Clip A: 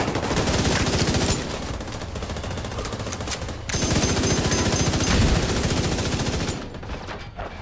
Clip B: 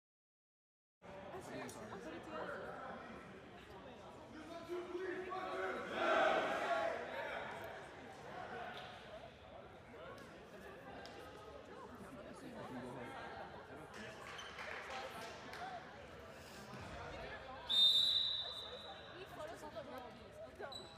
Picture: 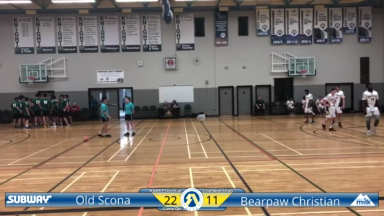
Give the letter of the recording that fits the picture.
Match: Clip B